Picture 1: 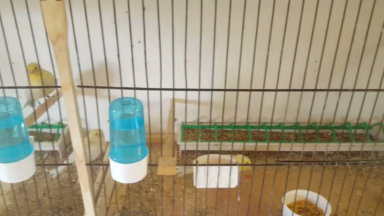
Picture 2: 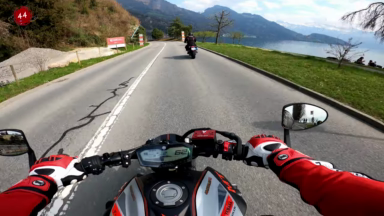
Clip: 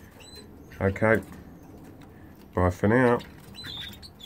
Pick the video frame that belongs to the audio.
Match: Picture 1